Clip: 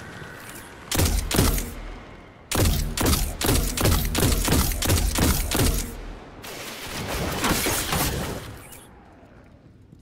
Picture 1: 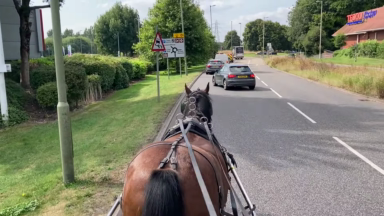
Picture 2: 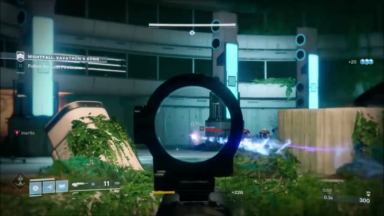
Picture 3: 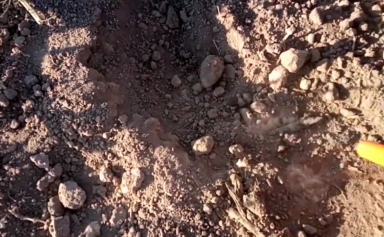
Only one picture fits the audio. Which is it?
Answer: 2